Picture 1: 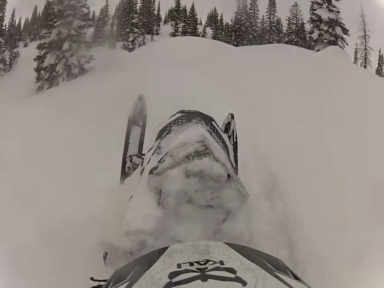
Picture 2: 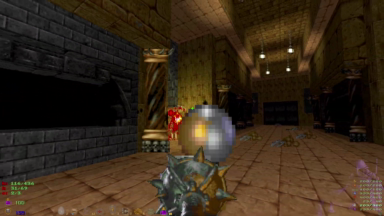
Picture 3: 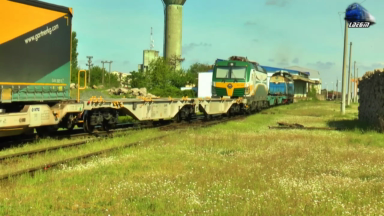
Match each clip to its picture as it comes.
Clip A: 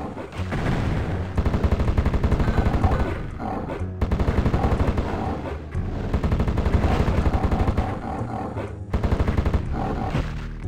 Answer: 2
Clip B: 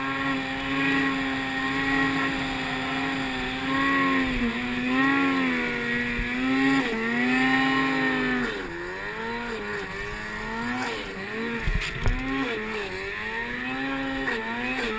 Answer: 1